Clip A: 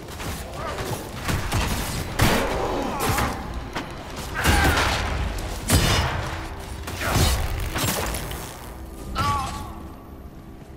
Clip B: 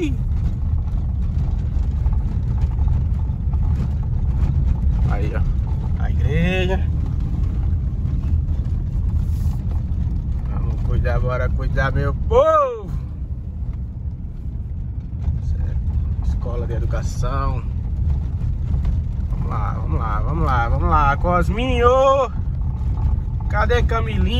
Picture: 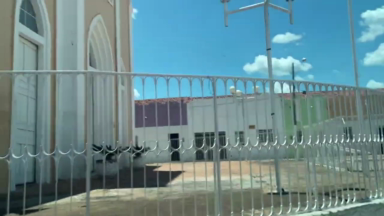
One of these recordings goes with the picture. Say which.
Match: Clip B